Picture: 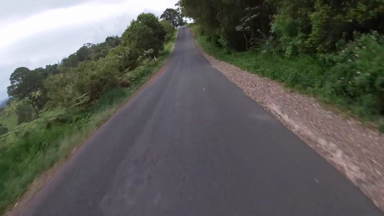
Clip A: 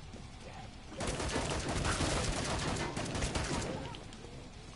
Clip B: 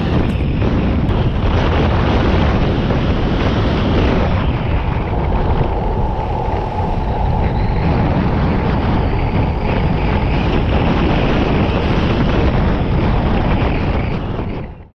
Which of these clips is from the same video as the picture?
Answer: B